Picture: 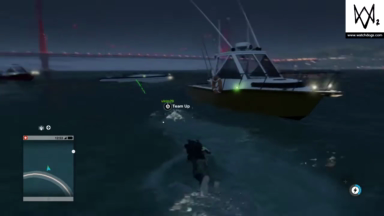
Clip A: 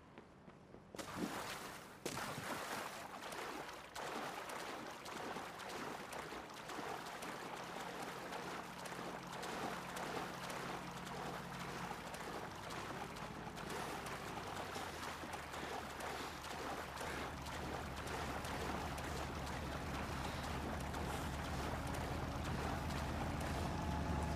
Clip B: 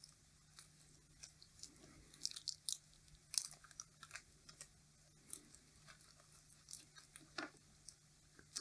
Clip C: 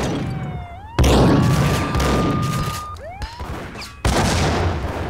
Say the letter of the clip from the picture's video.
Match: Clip A